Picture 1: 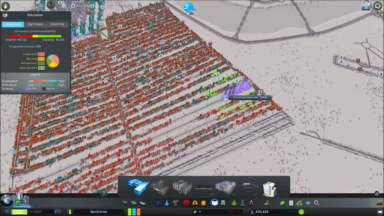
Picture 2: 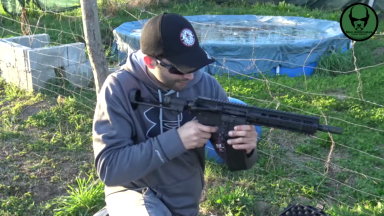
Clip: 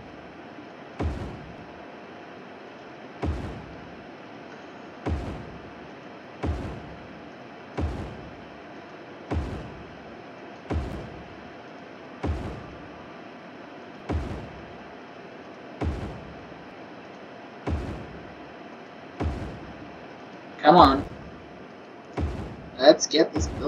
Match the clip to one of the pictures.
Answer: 1